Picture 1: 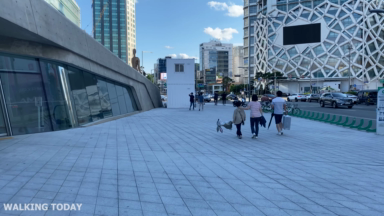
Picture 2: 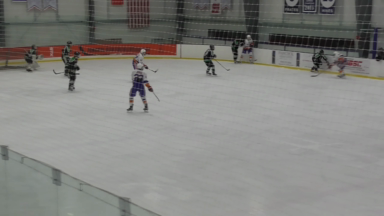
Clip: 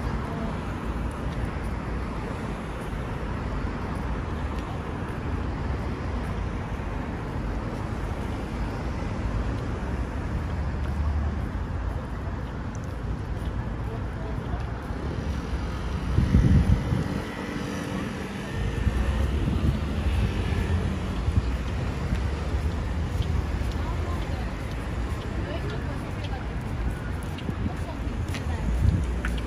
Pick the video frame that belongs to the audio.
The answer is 1